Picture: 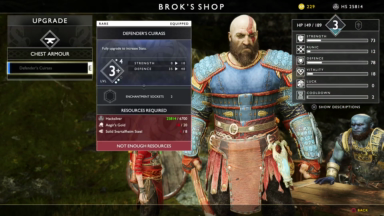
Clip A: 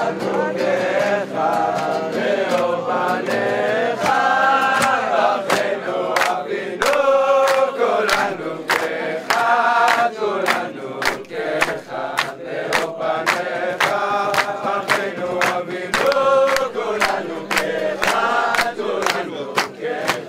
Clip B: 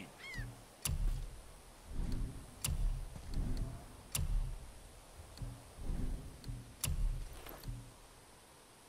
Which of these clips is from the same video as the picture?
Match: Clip B